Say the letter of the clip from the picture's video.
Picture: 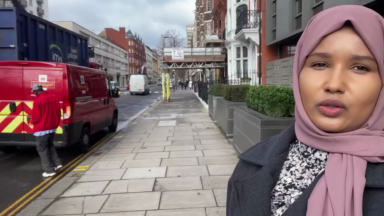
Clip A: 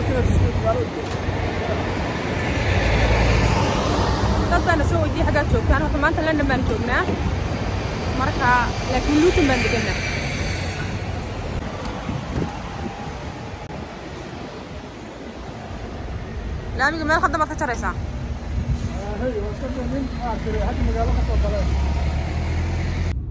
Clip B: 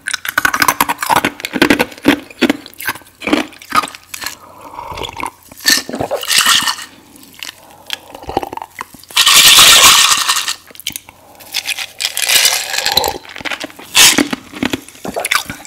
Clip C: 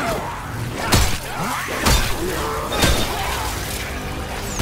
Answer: A